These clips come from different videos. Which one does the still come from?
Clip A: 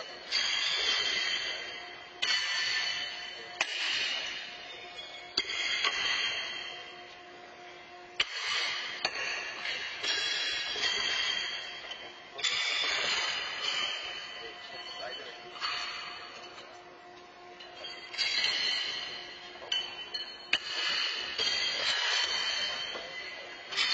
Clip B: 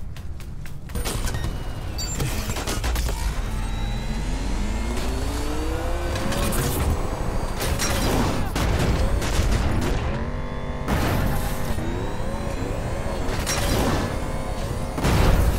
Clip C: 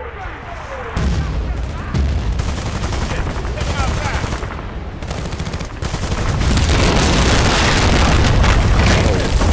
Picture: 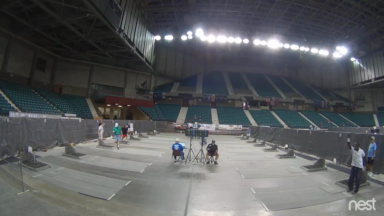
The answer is A